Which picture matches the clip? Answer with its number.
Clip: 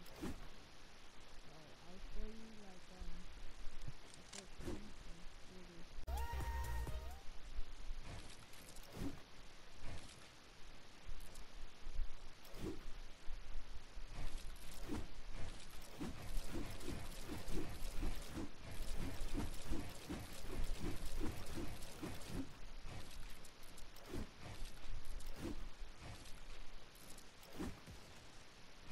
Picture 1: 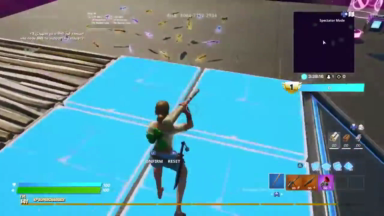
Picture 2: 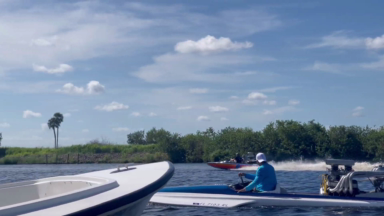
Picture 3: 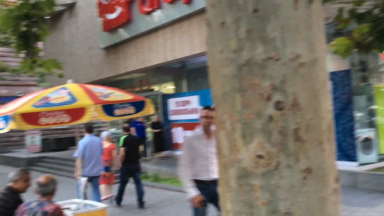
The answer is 1